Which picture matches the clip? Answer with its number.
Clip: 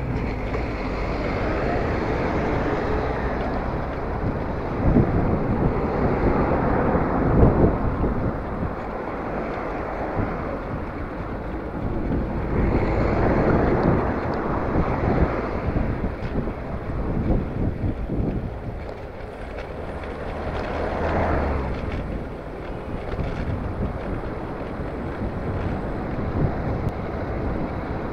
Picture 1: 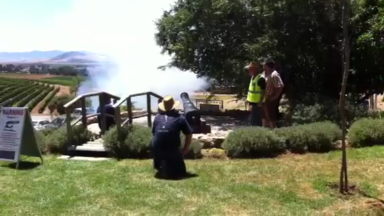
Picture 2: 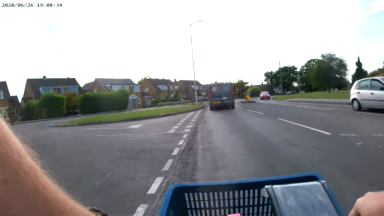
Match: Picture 2